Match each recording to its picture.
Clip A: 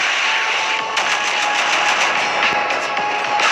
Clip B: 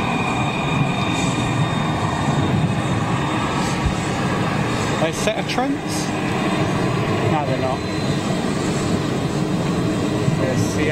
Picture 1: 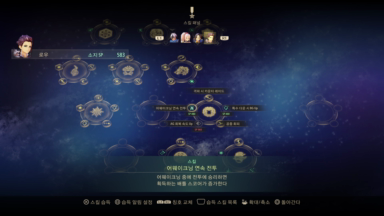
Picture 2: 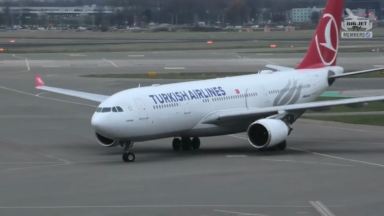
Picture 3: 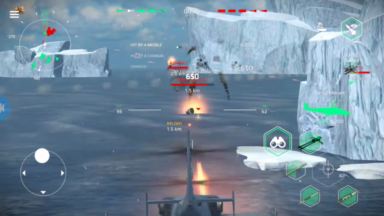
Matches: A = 3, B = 2